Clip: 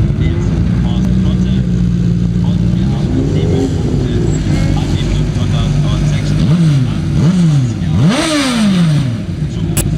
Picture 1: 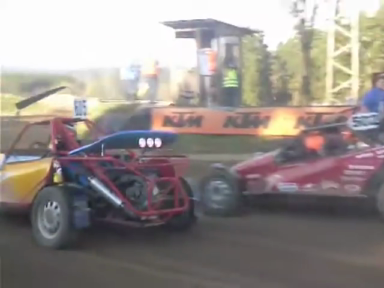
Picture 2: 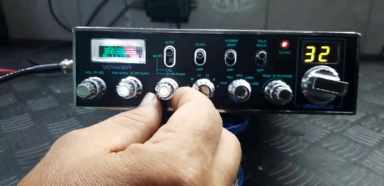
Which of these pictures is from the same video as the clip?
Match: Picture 1